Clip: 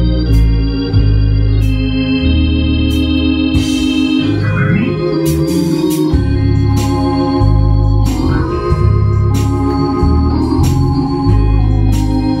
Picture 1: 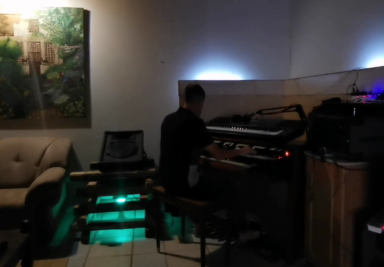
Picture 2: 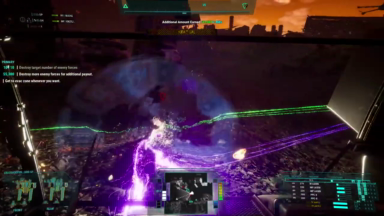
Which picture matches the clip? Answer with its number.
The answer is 1